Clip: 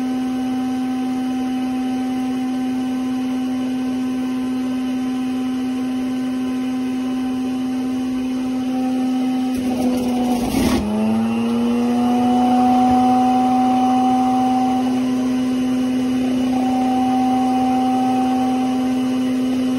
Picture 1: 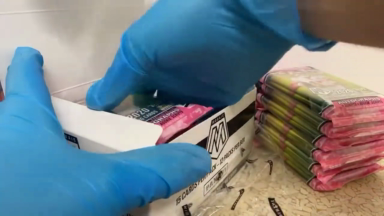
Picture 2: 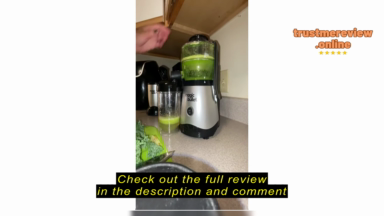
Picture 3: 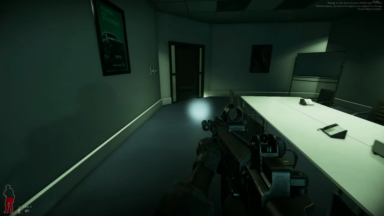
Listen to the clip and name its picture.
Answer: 2